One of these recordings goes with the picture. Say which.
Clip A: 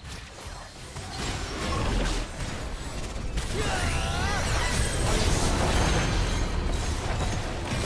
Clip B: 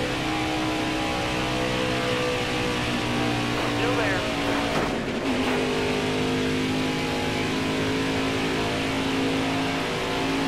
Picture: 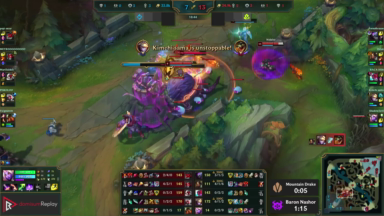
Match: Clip A